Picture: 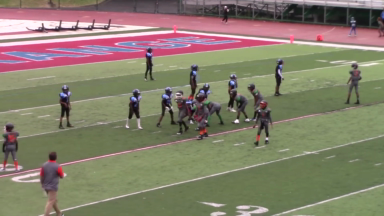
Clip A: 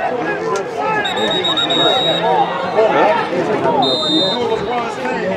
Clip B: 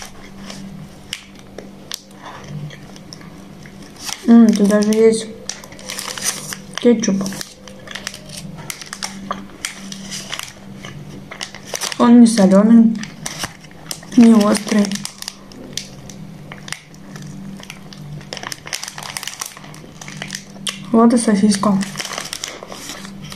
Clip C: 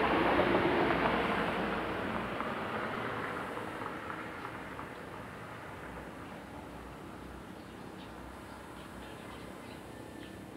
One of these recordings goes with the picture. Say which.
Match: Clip A